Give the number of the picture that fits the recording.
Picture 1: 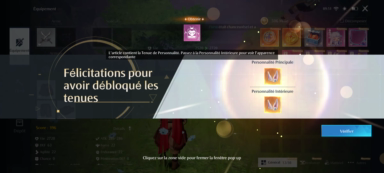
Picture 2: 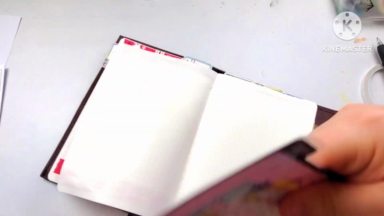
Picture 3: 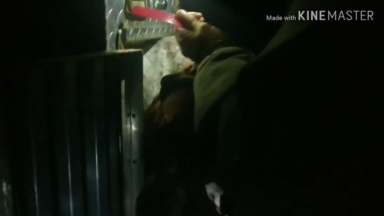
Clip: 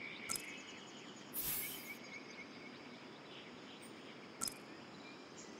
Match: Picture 1